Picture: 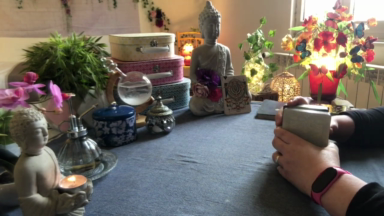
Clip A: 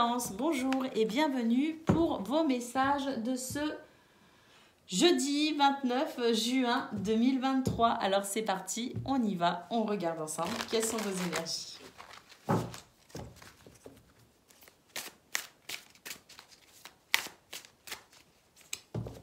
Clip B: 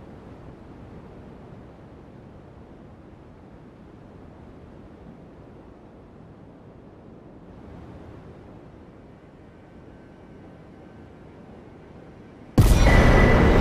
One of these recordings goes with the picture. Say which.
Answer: A